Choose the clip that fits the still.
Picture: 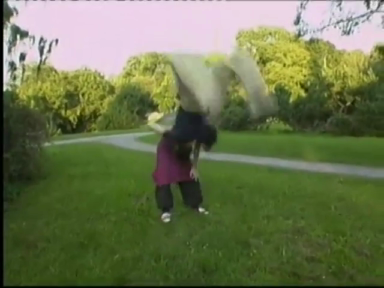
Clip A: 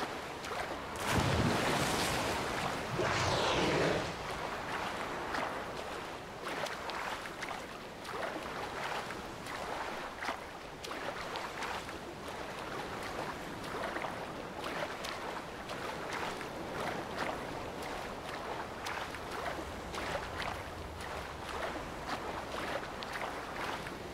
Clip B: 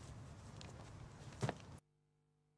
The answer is B